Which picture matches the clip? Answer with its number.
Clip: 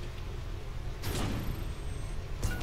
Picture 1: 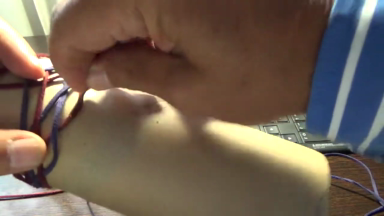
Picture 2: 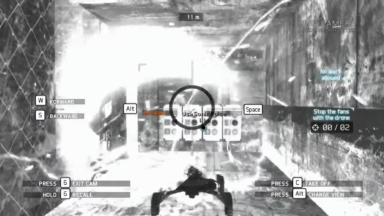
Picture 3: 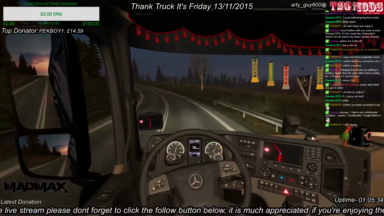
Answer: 2